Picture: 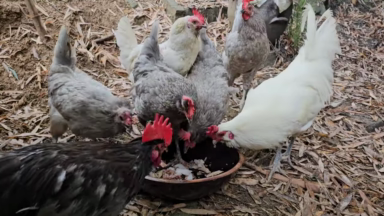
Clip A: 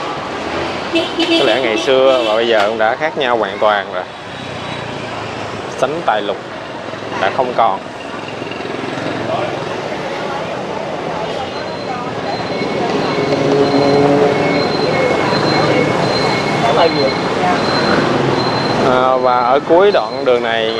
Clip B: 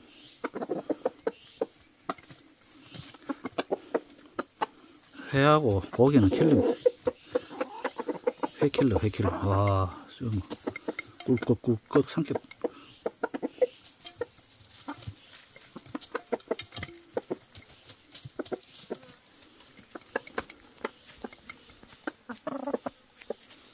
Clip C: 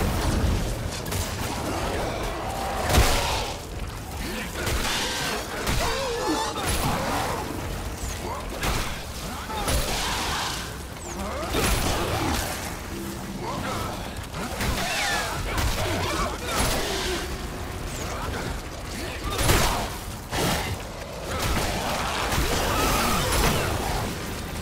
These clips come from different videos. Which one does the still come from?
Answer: B